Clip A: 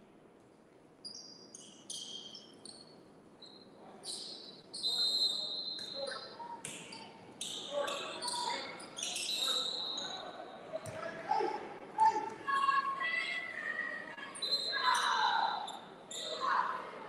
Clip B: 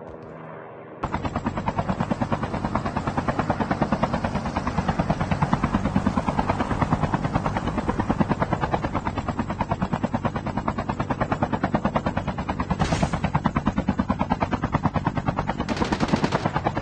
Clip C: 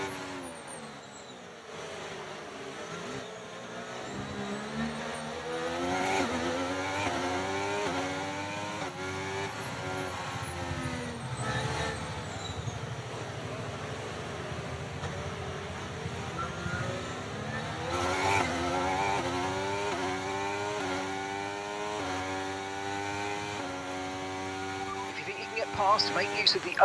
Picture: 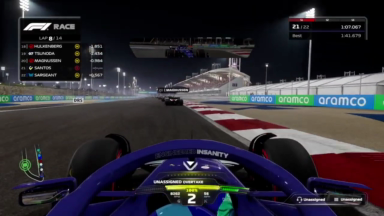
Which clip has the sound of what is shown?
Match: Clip C